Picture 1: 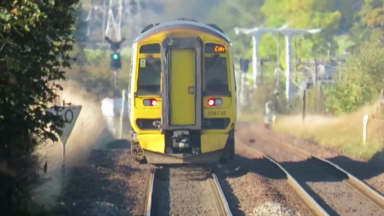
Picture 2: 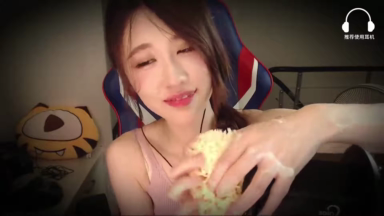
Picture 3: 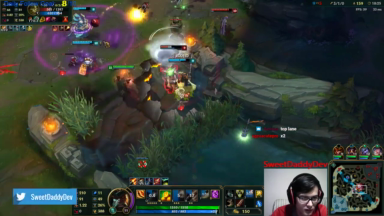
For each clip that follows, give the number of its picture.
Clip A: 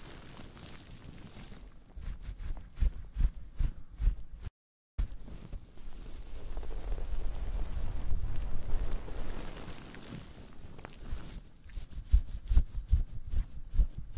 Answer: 2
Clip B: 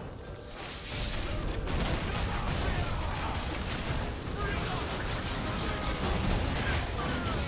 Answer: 3